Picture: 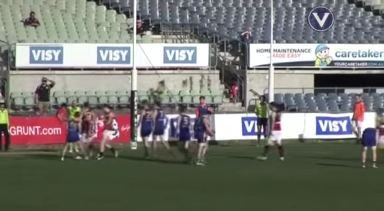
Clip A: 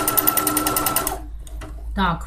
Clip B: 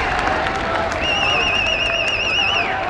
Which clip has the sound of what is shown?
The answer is B